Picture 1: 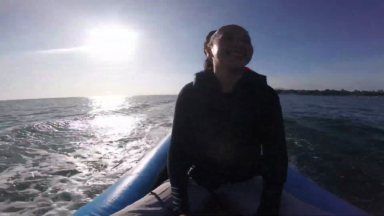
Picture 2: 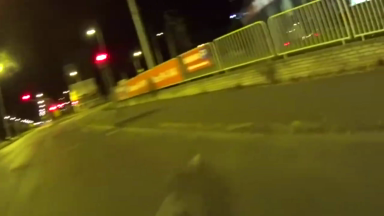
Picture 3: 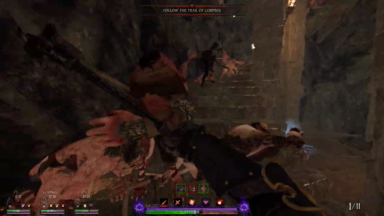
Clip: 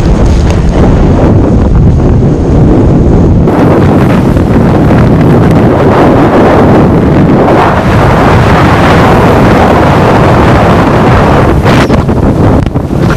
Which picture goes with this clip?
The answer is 1